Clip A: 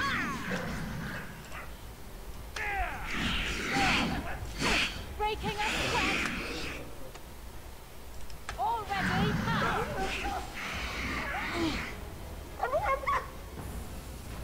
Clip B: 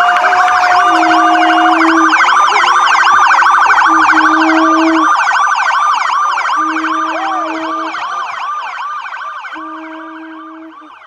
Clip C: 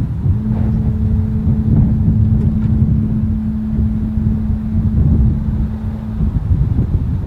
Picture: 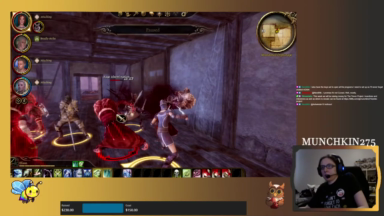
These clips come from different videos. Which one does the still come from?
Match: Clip A